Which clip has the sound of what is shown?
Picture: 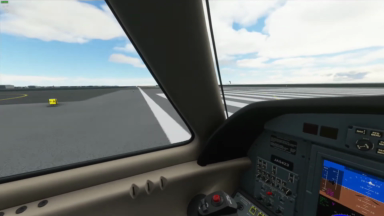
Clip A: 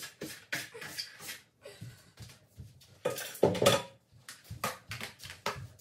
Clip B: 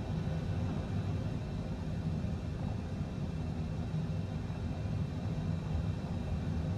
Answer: B